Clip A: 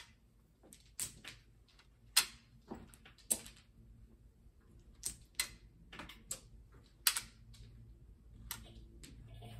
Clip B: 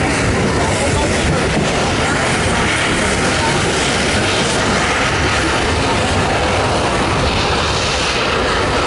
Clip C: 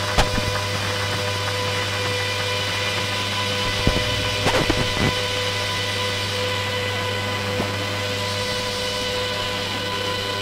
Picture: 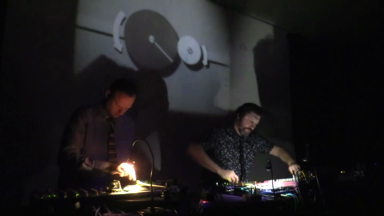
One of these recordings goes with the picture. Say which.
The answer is C